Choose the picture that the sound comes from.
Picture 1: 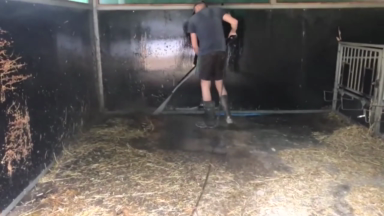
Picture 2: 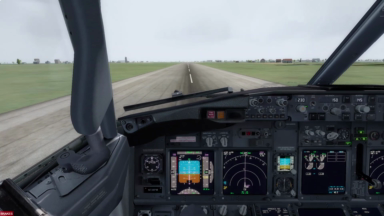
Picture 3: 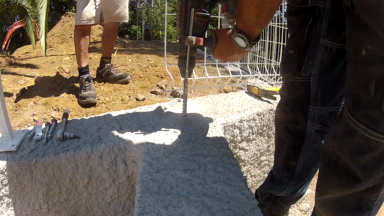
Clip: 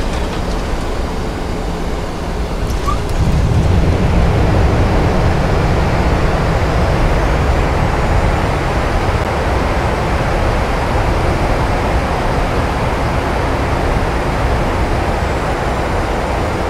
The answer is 2